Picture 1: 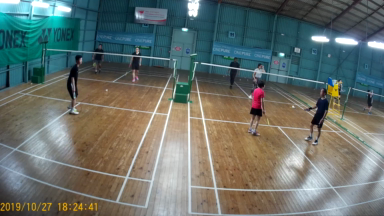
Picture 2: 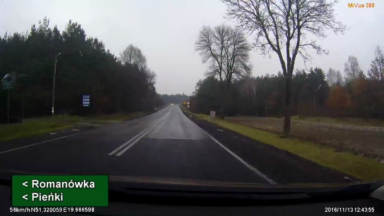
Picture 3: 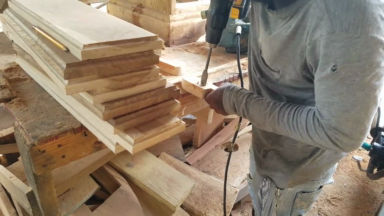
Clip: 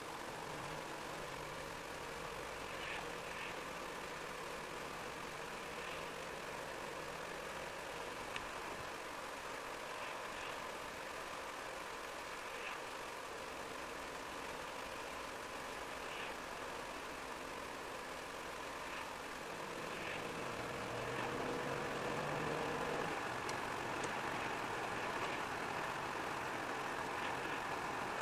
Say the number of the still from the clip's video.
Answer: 2